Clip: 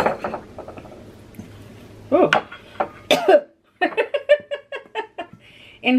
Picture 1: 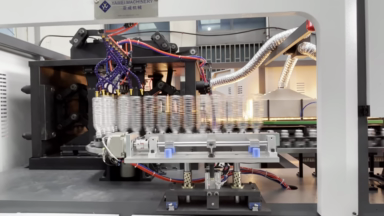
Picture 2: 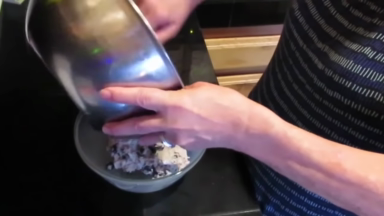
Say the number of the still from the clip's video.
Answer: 2